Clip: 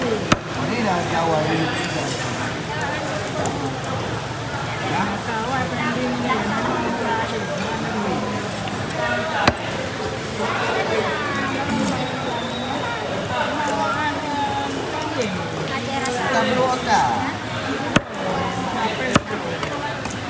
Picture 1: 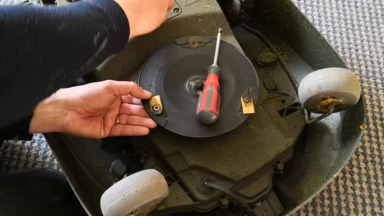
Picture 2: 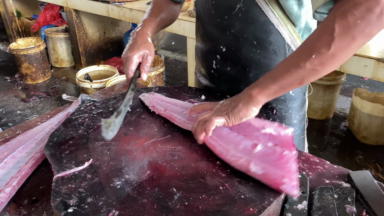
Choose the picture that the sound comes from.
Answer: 2